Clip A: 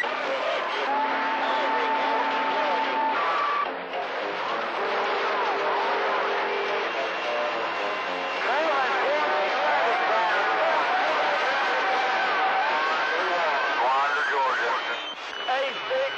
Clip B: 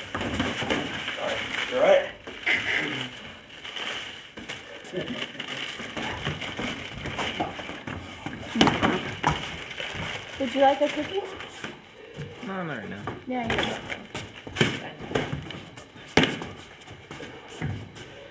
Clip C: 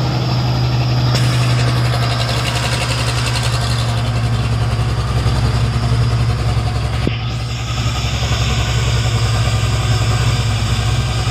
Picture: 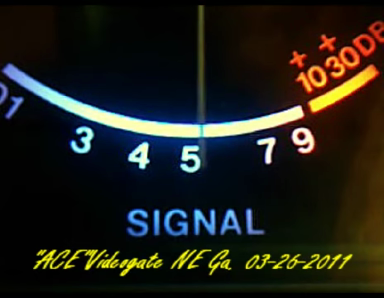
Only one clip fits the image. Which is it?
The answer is A